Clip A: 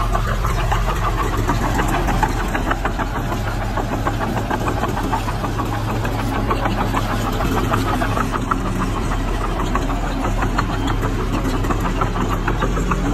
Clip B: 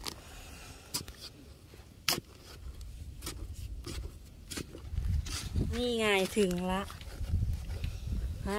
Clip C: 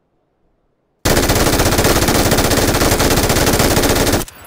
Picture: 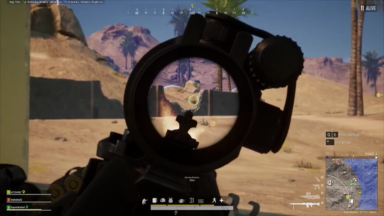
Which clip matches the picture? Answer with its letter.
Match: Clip C